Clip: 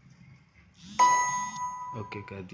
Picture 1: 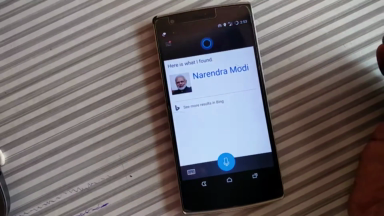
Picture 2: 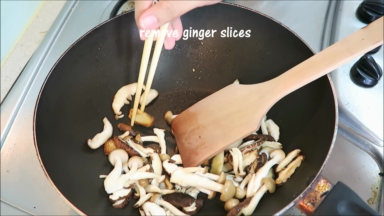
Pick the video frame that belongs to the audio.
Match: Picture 1